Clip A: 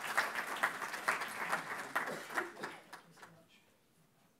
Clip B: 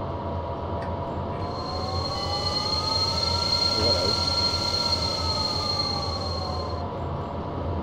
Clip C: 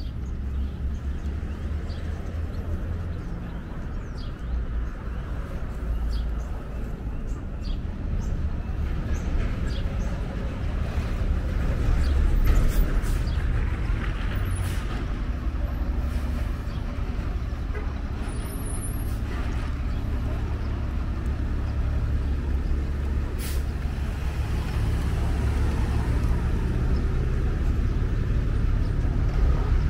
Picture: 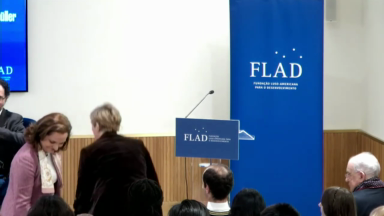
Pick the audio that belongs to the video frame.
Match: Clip A